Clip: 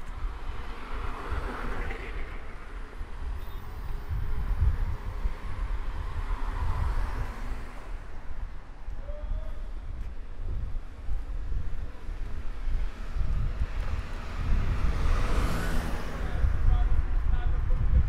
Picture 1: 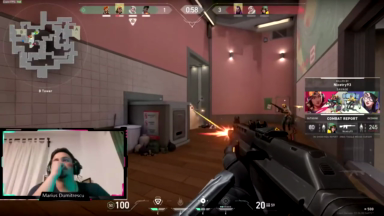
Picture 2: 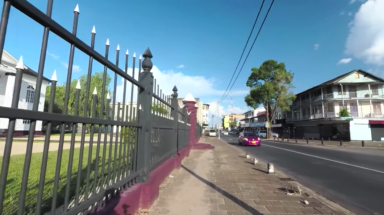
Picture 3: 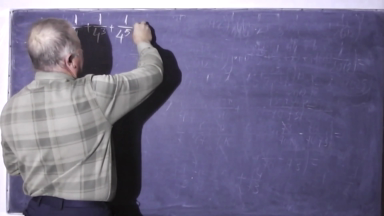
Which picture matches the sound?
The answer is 2